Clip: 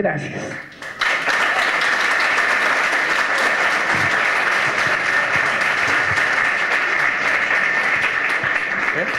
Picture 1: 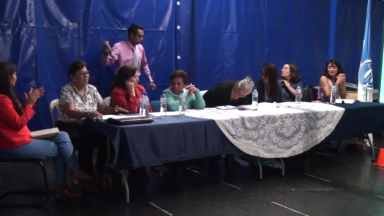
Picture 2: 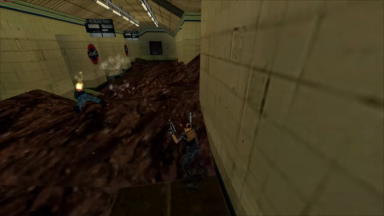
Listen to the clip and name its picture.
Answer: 1